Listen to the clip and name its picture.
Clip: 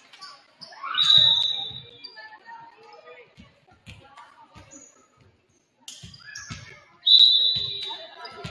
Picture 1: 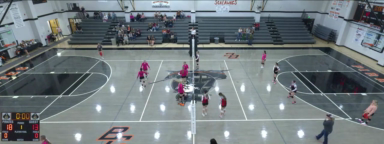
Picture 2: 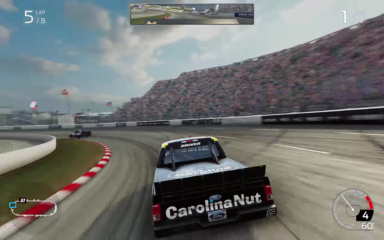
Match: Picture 1